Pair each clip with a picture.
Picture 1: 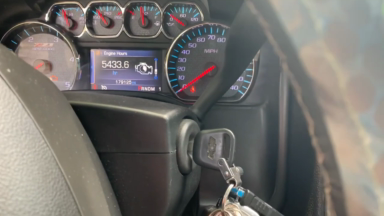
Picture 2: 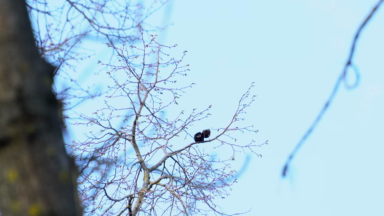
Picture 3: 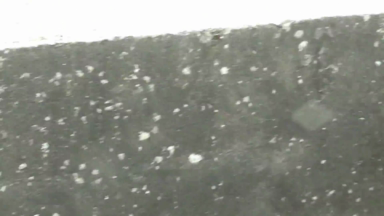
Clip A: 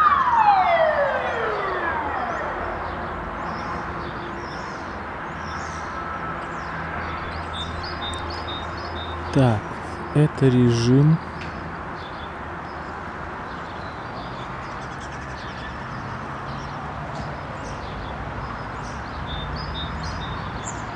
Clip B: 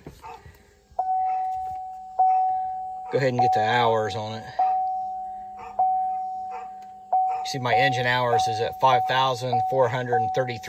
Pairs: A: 2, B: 1